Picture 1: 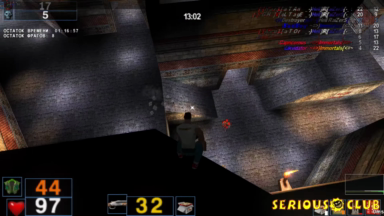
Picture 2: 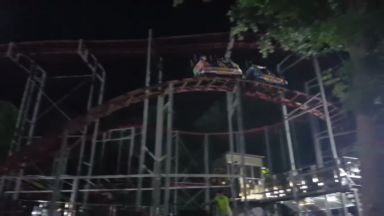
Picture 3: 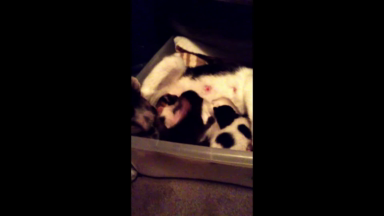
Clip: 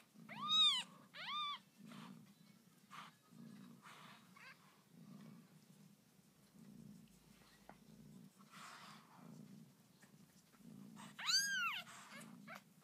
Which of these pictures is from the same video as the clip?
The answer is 3